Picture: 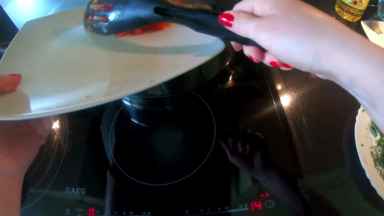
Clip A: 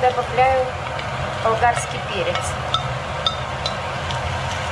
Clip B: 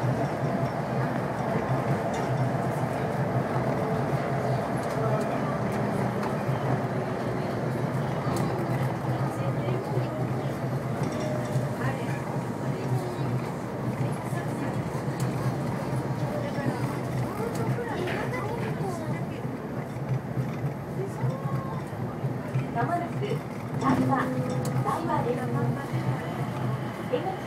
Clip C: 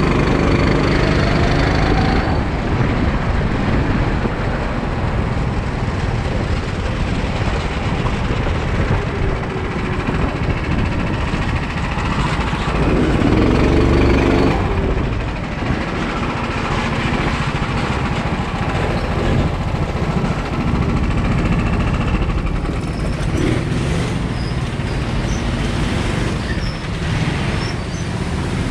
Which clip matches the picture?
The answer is A